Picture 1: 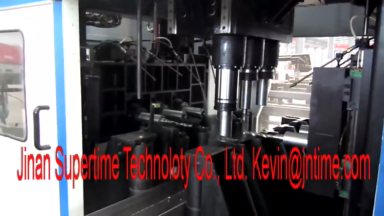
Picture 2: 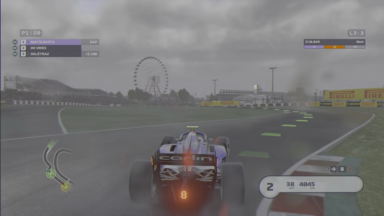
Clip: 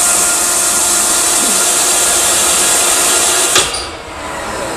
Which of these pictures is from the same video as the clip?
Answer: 1